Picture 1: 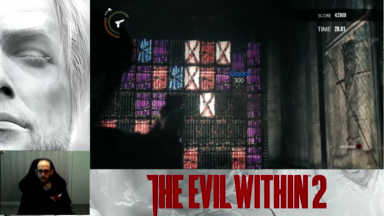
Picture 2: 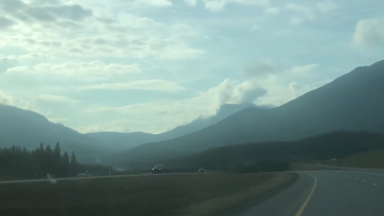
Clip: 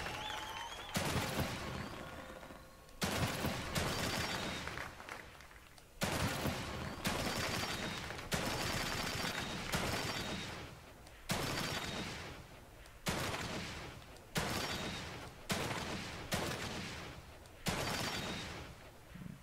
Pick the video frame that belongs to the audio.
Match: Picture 1